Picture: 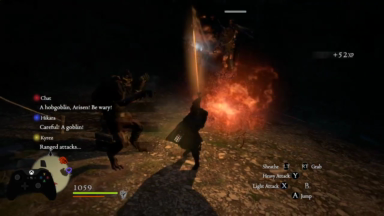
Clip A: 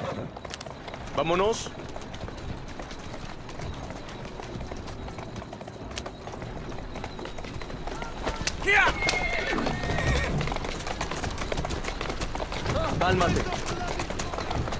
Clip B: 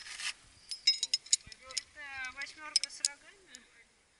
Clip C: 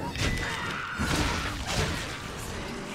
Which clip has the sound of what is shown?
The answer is C